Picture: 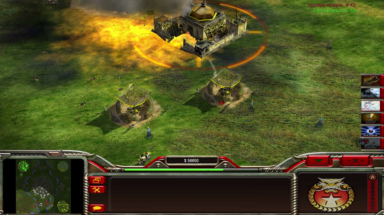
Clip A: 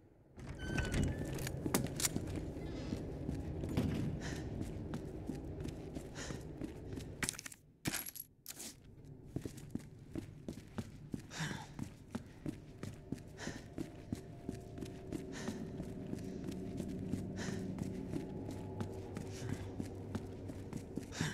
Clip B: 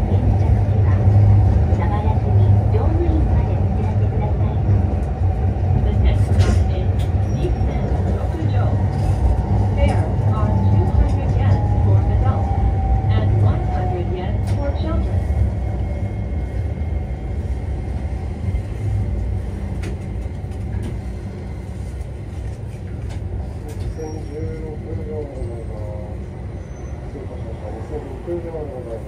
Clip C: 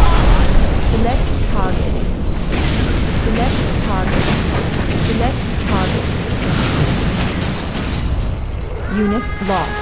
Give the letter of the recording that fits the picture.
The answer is C